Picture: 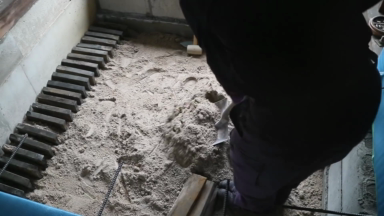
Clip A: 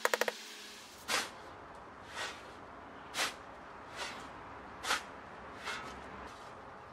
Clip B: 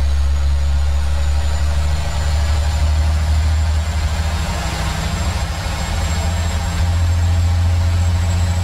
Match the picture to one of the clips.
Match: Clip A